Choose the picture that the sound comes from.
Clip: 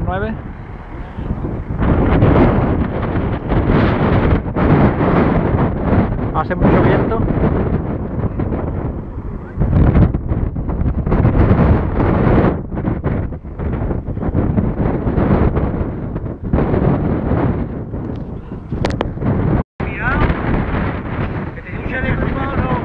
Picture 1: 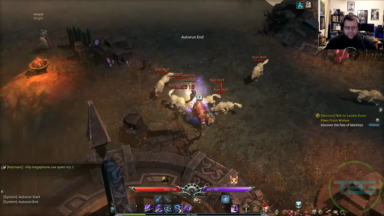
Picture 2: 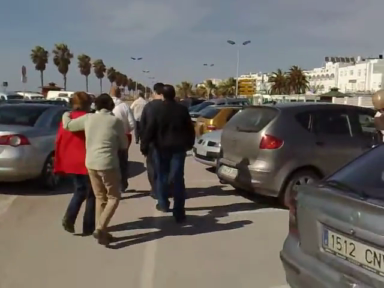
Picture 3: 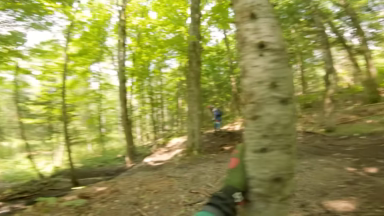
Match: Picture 2